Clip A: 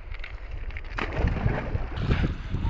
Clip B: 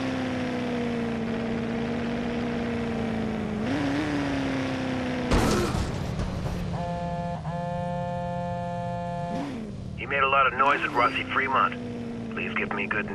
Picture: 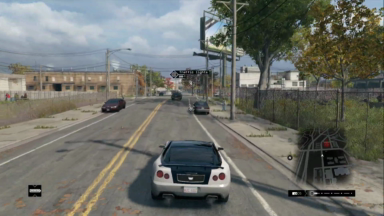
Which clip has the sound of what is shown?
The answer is B